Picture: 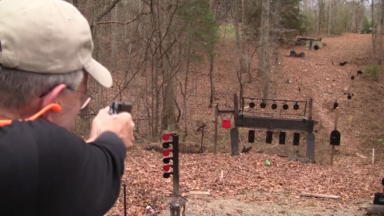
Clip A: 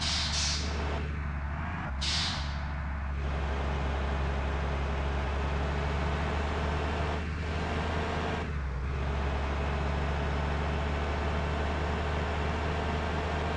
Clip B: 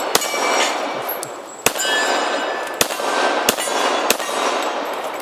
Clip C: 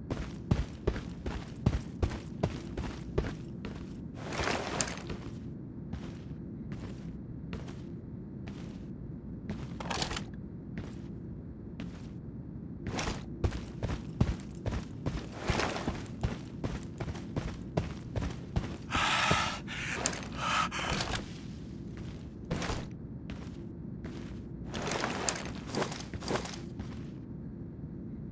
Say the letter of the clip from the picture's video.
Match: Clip B